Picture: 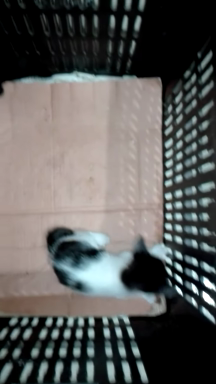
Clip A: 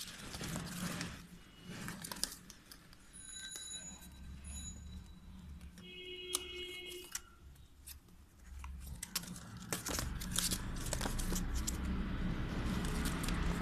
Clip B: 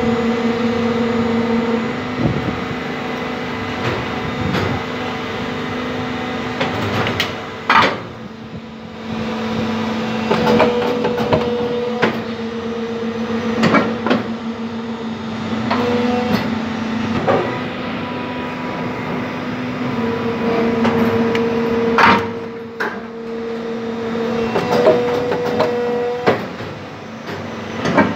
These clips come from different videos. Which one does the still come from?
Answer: A